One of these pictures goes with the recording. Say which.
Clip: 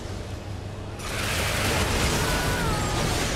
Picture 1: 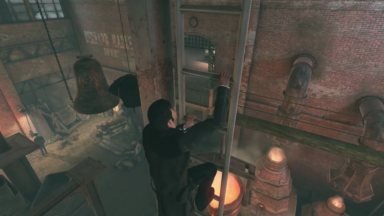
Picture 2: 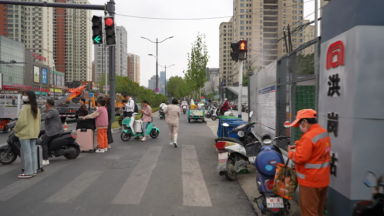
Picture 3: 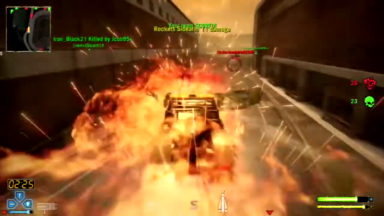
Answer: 3